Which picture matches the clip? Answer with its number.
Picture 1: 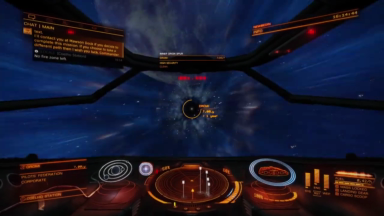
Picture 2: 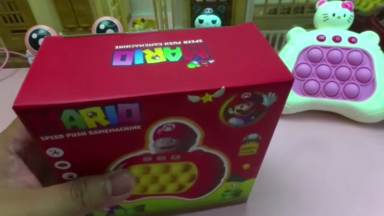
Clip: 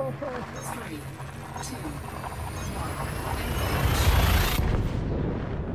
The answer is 1